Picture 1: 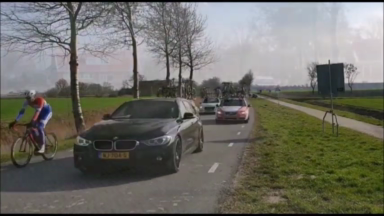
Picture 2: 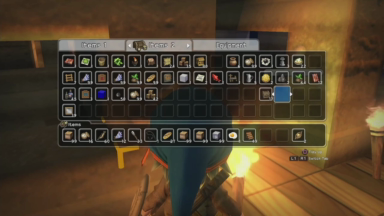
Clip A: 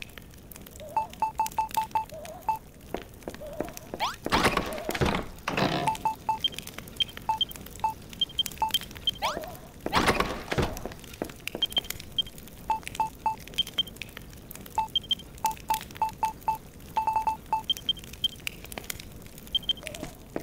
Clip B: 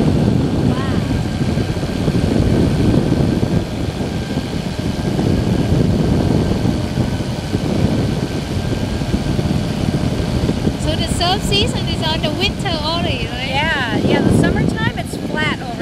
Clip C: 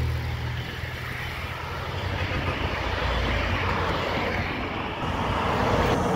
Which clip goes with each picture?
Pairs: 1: C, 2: A